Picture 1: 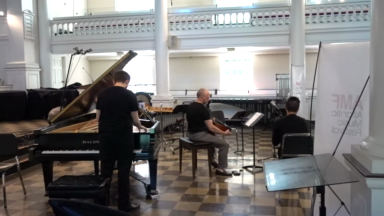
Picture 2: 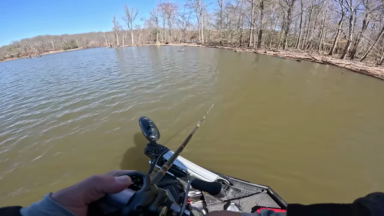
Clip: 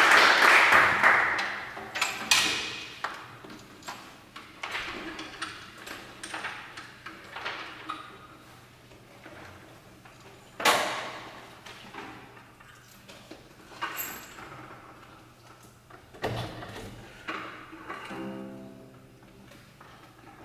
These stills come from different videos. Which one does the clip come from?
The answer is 1